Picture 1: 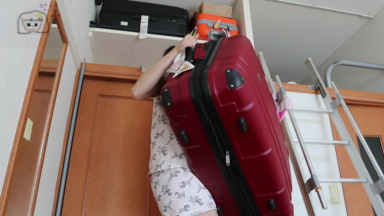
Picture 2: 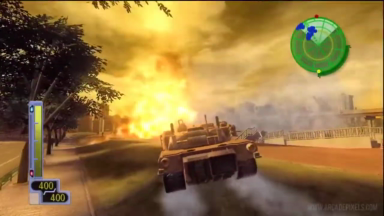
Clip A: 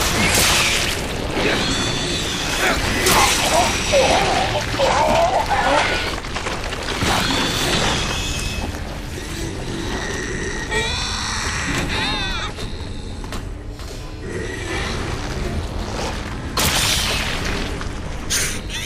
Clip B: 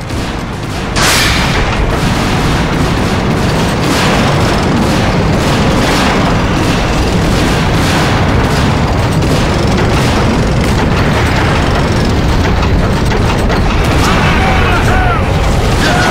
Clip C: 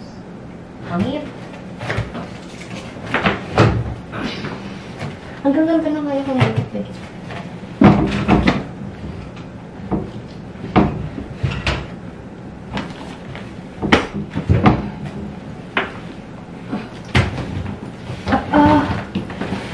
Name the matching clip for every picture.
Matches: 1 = C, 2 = B